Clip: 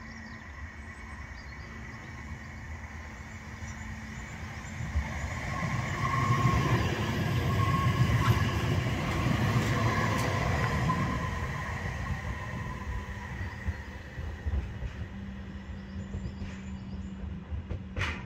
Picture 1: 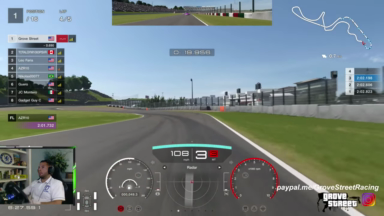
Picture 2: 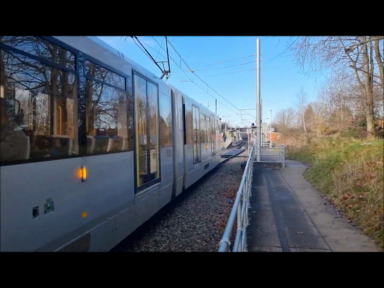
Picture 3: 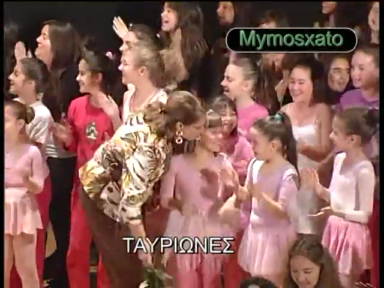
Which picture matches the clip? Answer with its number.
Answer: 2